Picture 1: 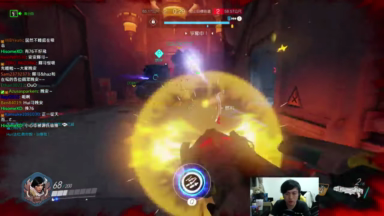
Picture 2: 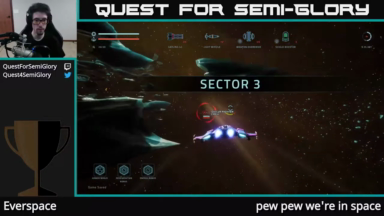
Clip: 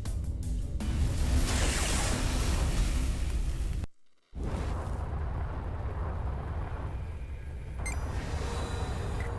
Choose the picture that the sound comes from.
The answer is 2